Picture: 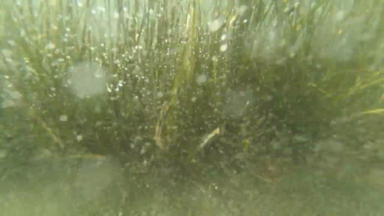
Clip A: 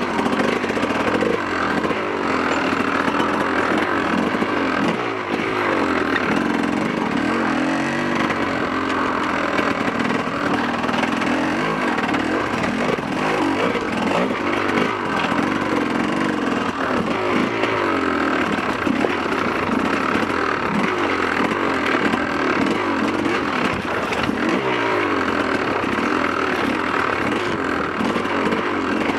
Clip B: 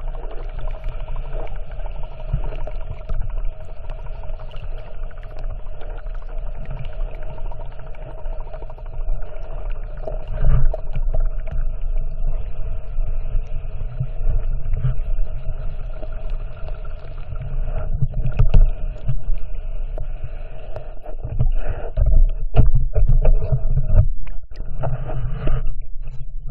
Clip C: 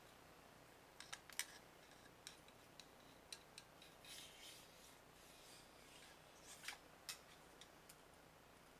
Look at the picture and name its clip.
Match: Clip B